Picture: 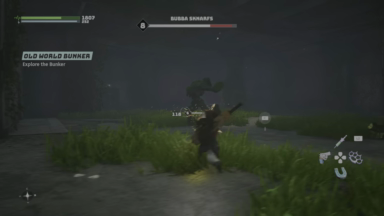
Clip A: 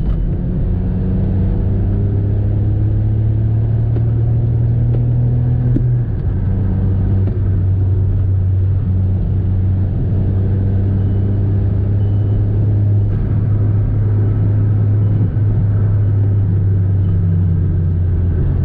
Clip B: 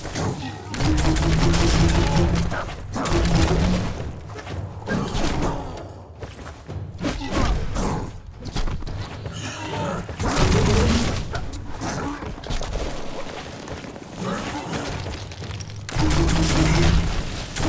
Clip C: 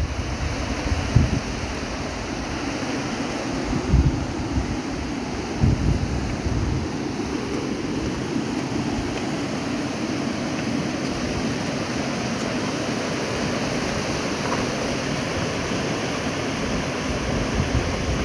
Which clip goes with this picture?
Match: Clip B